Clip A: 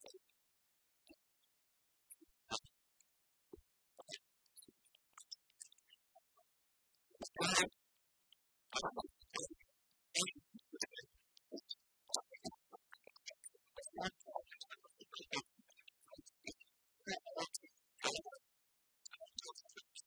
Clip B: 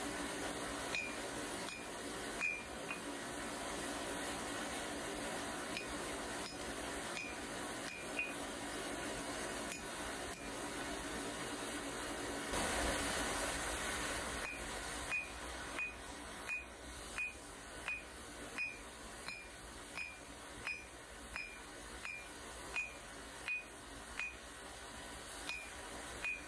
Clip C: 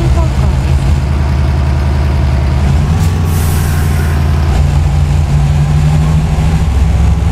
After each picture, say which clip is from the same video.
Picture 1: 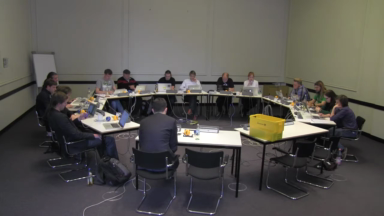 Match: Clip A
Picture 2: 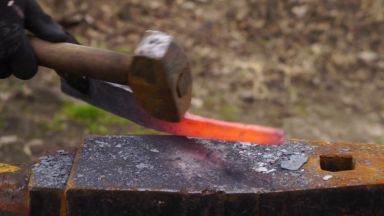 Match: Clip B